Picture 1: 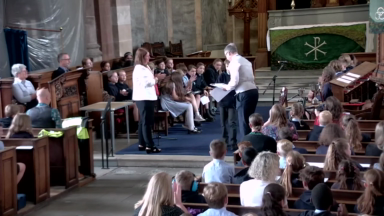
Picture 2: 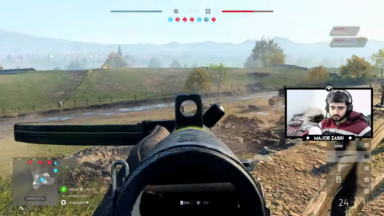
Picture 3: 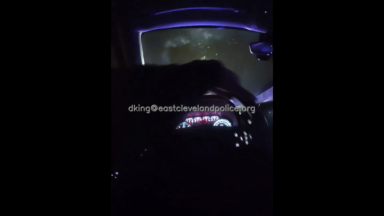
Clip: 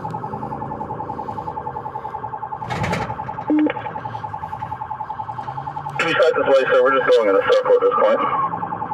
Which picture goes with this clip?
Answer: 3